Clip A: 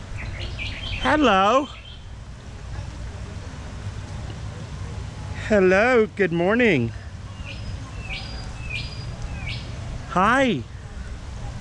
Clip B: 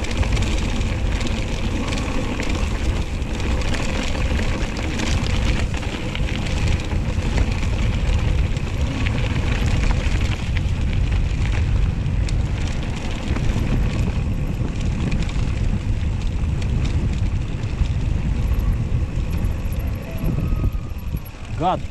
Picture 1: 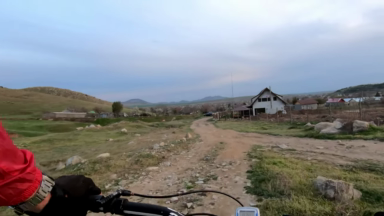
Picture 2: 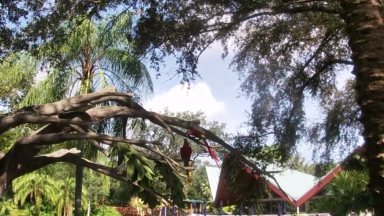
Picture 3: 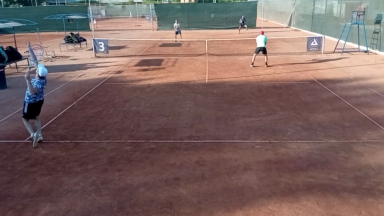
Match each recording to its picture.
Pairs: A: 2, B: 1